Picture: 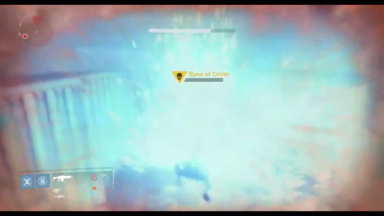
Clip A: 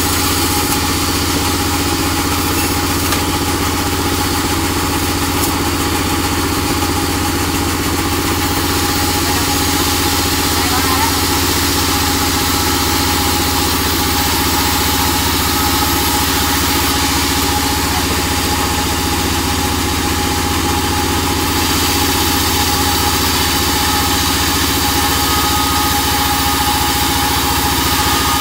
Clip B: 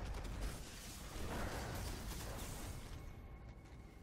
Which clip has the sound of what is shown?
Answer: B